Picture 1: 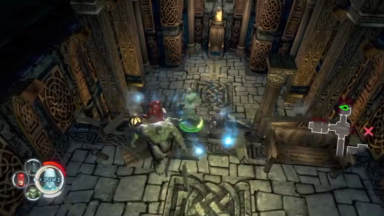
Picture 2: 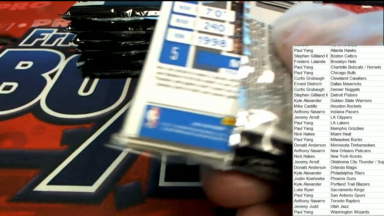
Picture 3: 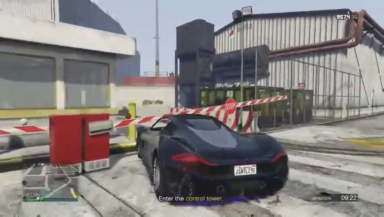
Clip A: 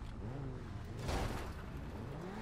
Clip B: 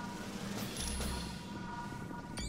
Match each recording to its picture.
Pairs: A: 3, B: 1